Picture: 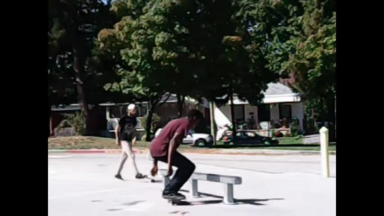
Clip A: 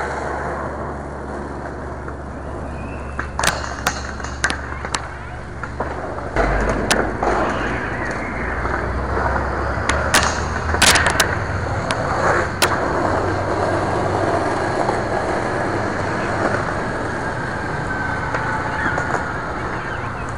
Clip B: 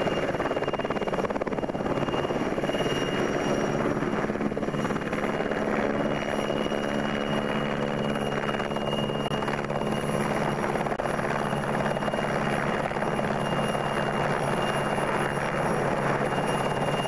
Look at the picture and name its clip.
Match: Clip A